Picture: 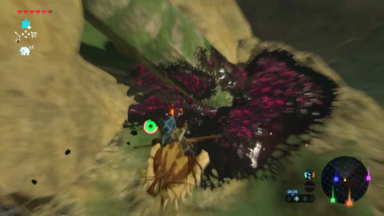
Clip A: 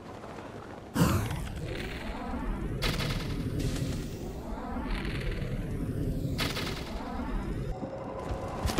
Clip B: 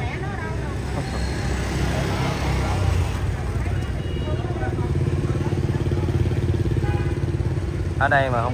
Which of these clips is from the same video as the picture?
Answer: A